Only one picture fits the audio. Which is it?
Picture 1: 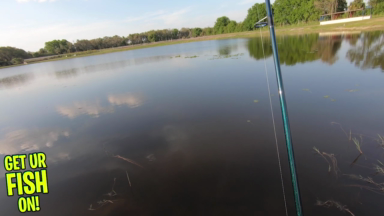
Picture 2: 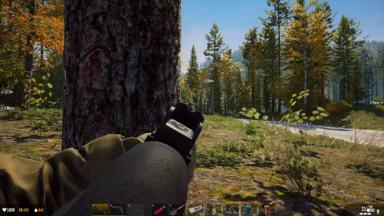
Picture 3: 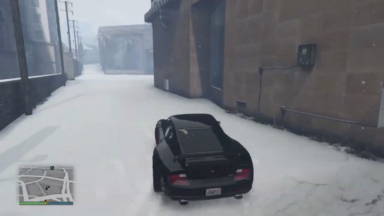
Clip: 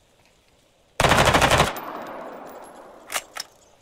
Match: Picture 2